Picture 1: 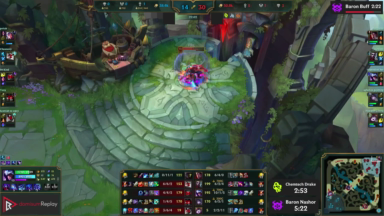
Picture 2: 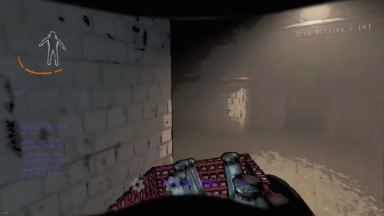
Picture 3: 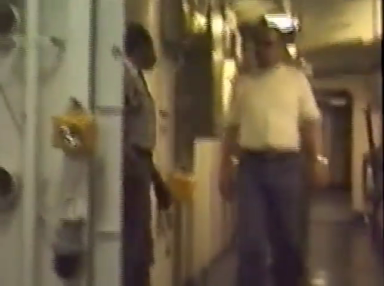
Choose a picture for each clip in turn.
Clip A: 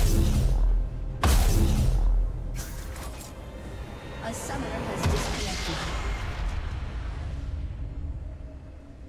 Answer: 1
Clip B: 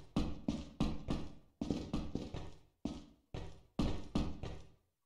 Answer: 2